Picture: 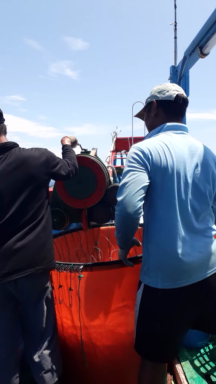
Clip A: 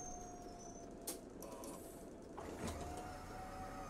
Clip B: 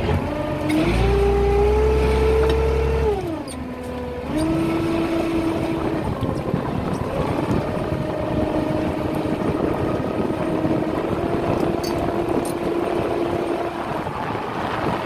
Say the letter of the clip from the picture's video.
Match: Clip B